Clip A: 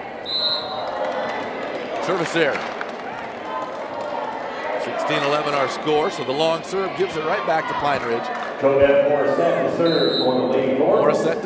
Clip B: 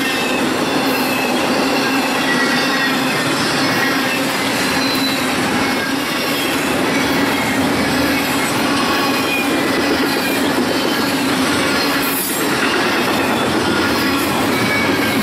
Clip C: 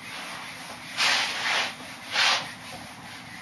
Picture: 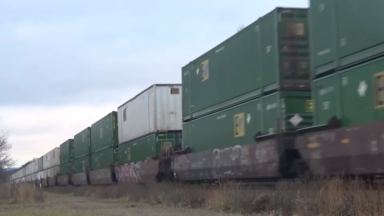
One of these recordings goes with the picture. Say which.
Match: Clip B